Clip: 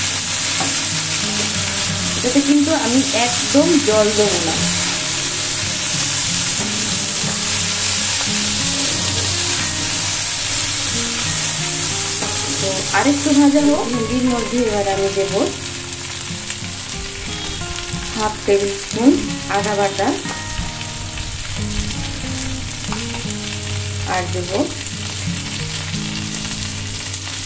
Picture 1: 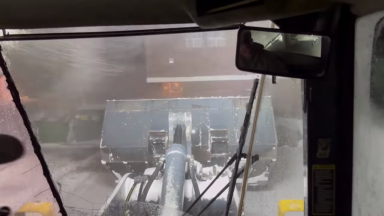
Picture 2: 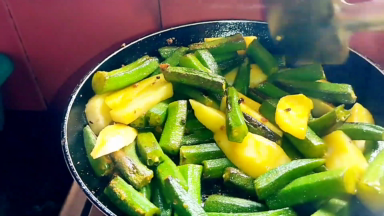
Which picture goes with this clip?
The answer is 2